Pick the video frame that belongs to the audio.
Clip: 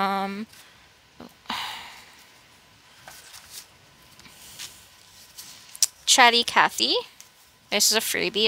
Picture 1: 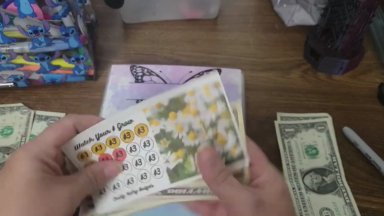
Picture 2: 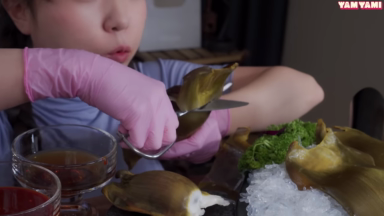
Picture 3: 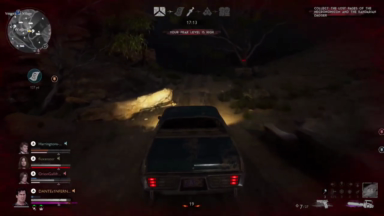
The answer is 1